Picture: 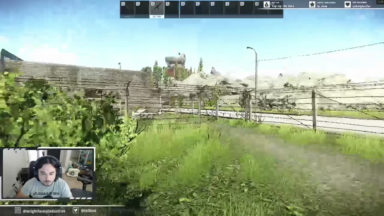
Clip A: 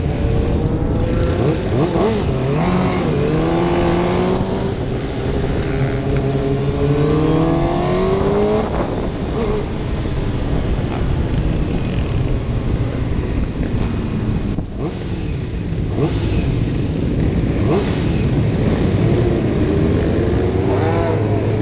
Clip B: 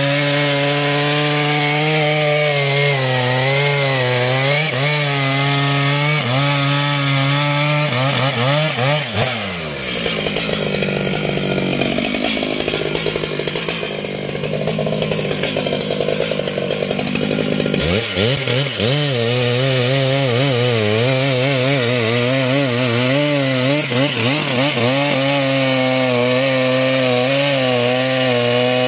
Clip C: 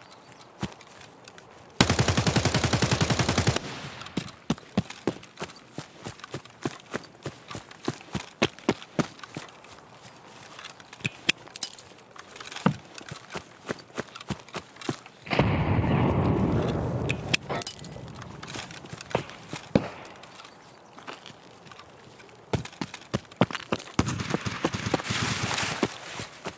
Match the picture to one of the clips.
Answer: C